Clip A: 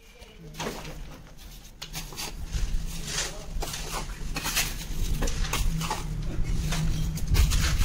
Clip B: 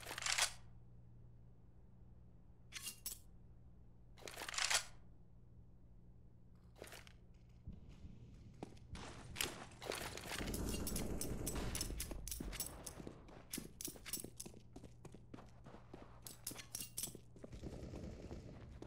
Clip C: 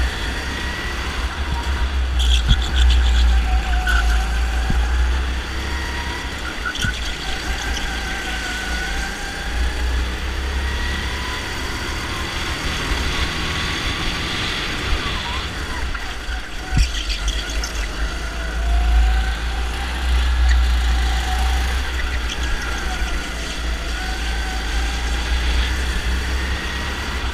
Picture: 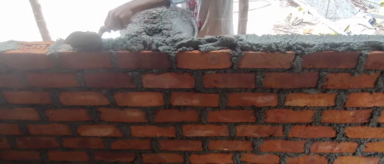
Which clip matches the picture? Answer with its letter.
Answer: A